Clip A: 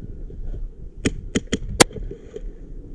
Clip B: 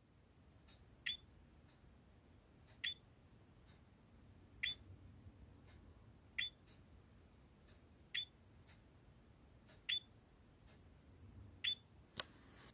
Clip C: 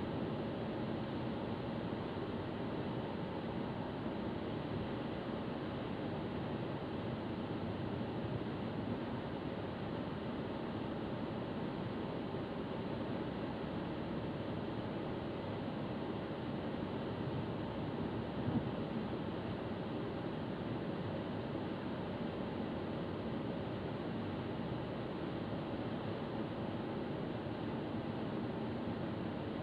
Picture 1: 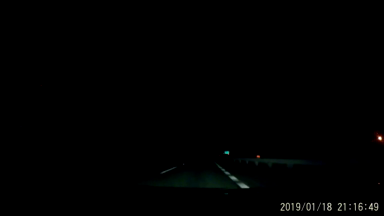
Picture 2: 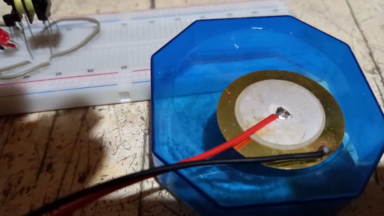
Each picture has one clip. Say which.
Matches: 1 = C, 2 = B